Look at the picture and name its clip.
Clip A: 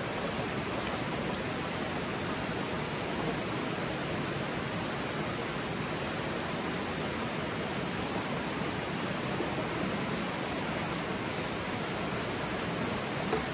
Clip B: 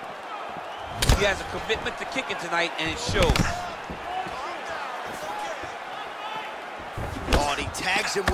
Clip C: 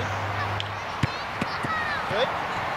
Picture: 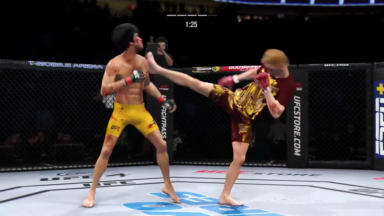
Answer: B